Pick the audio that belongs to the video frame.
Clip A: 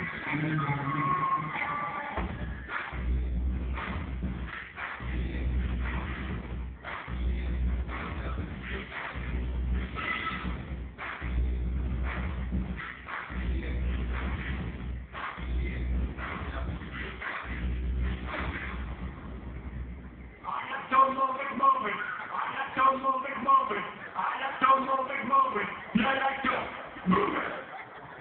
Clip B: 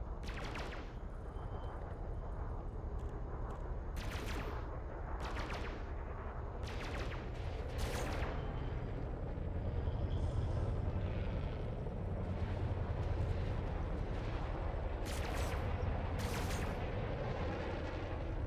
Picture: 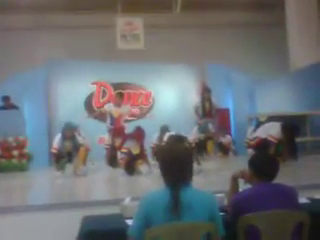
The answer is A